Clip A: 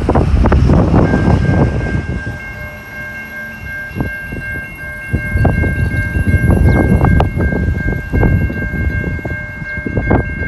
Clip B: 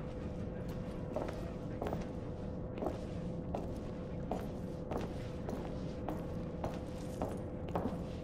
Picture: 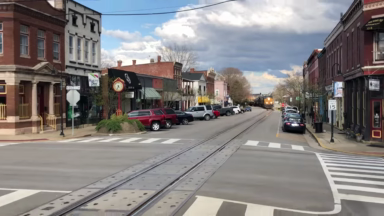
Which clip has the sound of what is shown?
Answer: A